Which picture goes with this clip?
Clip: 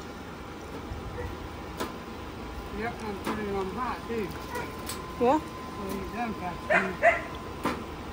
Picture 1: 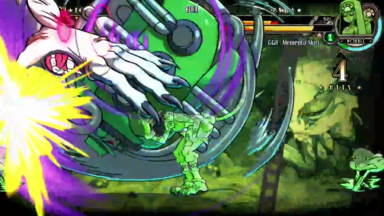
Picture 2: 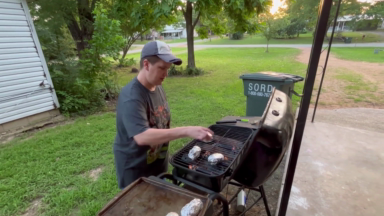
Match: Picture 2